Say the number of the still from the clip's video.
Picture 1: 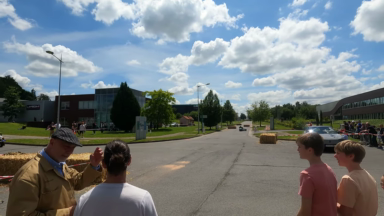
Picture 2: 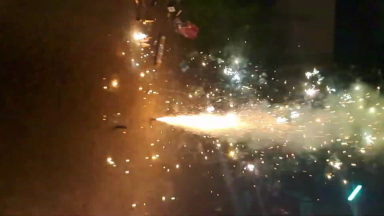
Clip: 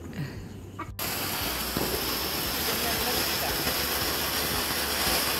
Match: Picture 2